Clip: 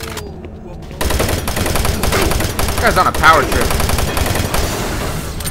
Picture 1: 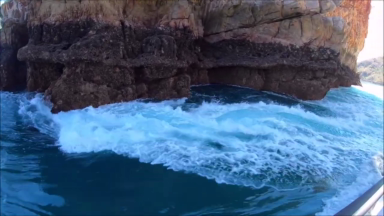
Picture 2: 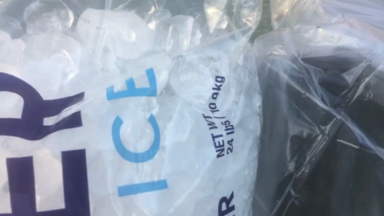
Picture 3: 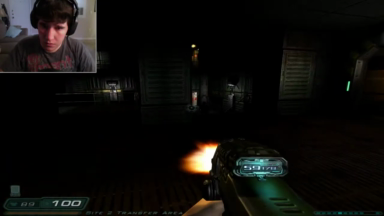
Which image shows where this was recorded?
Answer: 3